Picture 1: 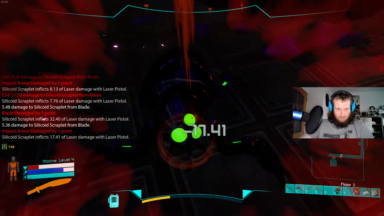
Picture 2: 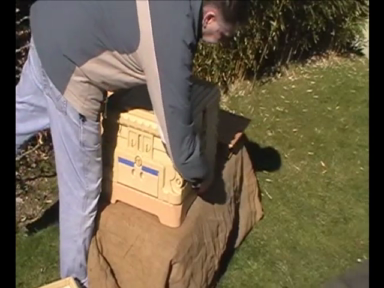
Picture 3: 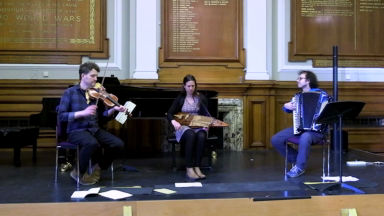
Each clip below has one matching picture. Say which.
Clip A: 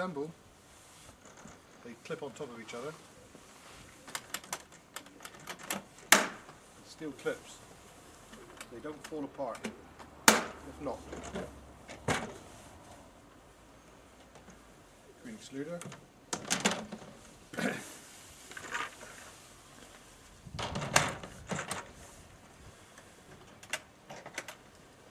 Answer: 2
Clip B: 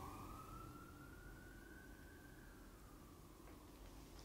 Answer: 3